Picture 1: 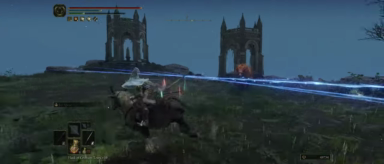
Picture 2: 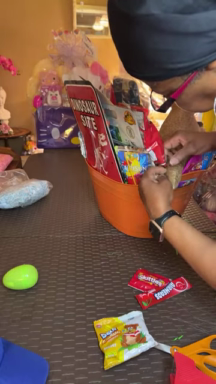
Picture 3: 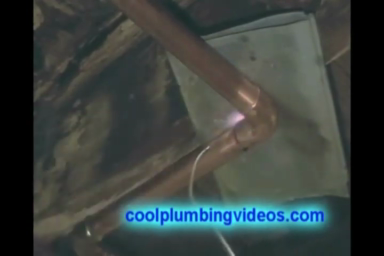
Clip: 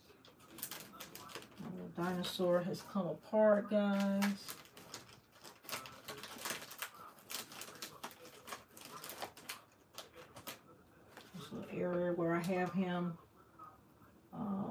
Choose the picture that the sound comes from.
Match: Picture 2